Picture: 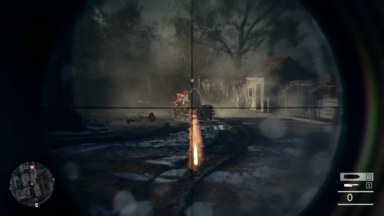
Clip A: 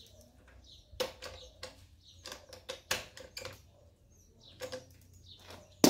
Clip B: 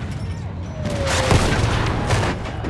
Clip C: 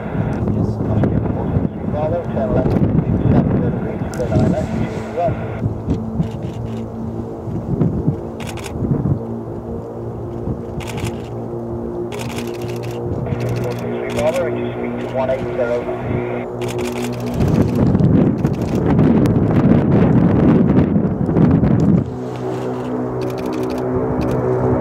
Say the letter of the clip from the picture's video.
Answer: B